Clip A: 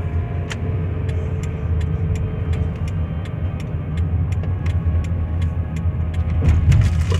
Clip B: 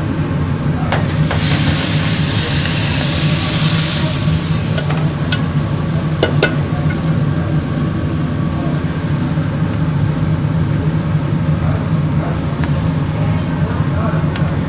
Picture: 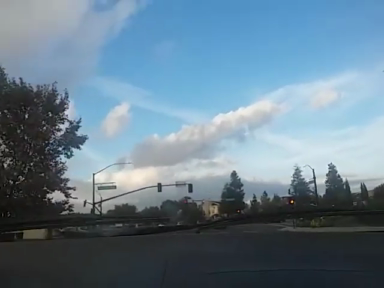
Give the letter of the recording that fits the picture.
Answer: A